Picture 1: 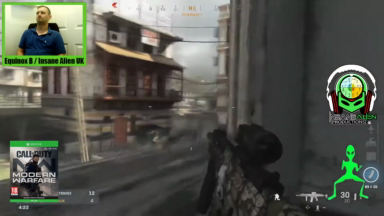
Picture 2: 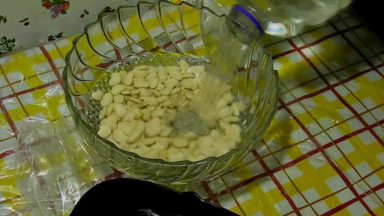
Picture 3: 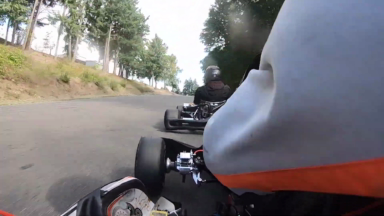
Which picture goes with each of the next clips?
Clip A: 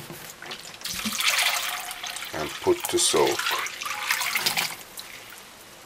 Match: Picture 2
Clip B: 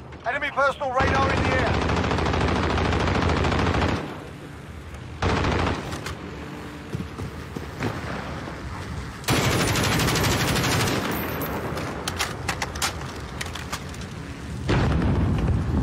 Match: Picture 1